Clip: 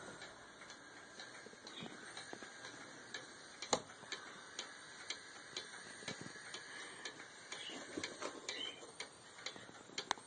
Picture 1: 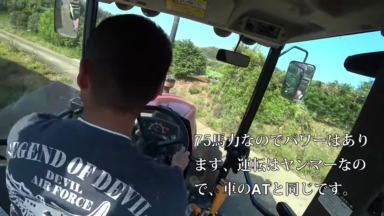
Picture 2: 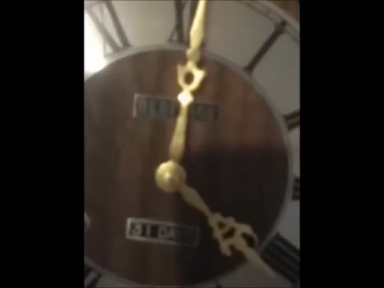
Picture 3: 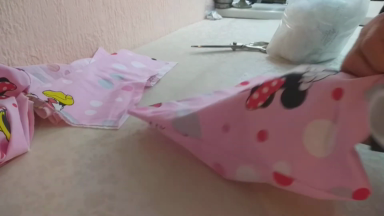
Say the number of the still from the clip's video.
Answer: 2